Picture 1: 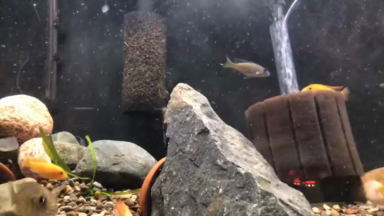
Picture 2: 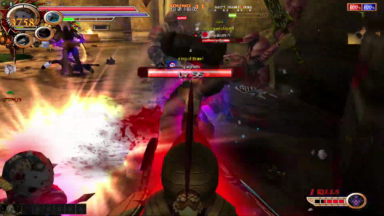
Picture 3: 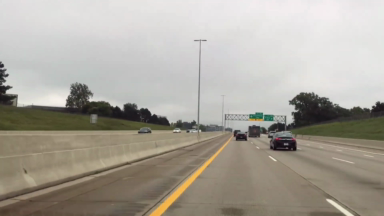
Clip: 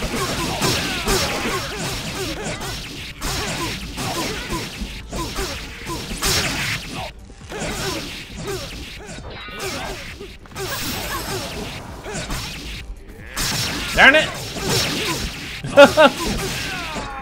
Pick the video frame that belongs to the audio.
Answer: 2